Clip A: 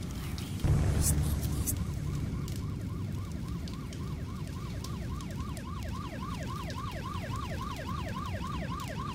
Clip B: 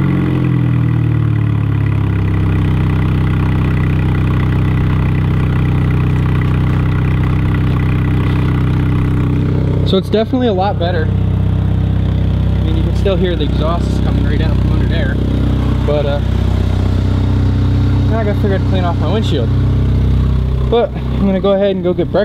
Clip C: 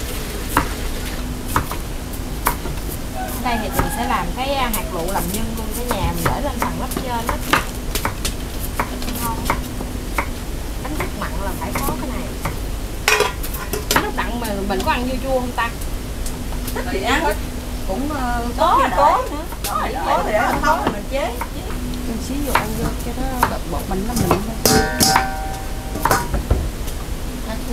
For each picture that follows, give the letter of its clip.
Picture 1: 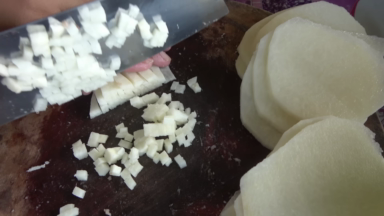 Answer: C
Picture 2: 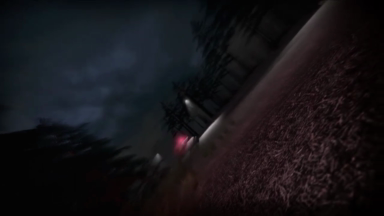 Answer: A